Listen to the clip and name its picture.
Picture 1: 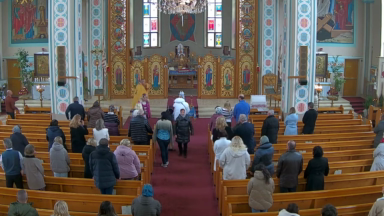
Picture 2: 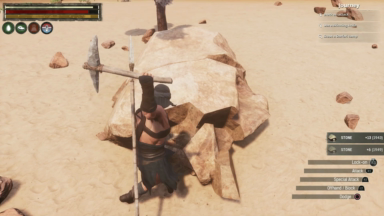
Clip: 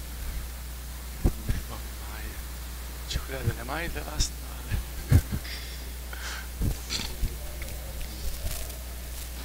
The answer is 1